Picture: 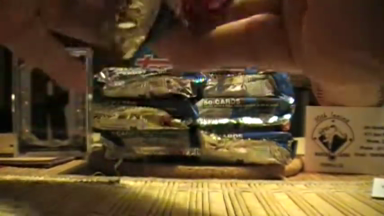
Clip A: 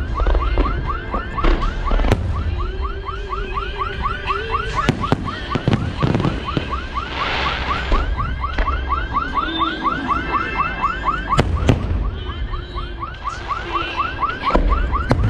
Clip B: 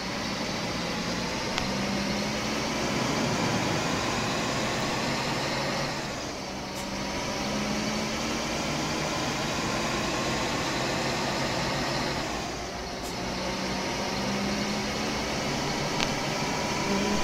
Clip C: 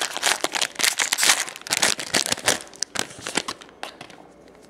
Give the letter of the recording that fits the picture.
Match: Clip C